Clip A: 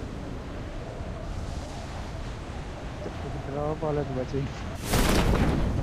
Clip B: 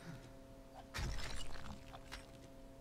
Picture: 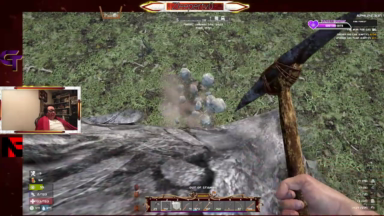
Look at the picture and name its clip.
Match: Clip B